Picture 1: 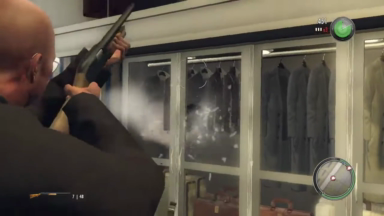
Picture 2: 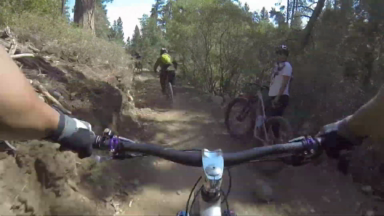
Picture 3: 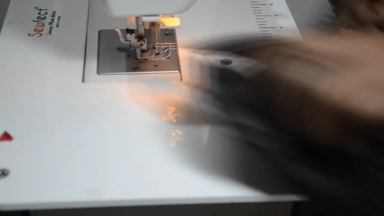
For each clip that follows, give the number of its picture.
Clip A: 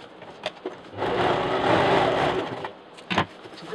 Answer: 3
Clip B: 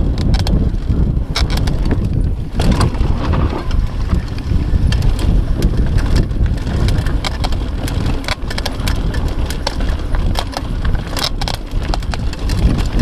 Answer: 2